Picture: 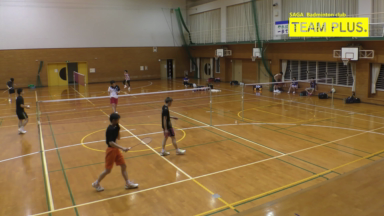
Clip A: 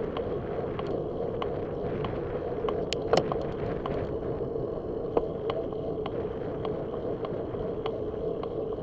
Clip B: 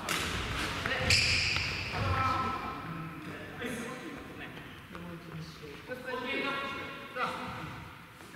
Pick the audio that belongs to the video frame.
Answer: B